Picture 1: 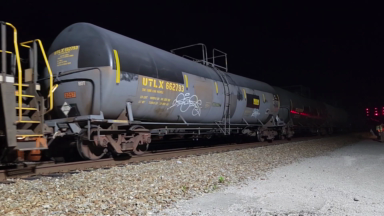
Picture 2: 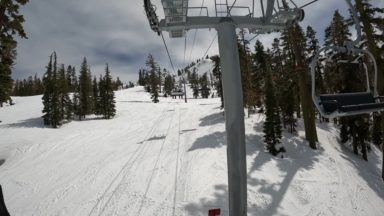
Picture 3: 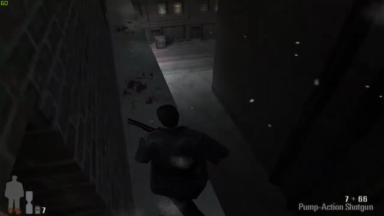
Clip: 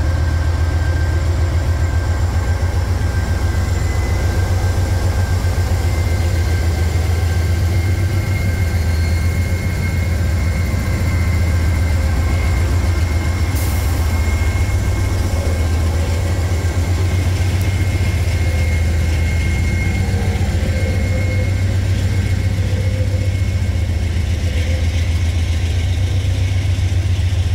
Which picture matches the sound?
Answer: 1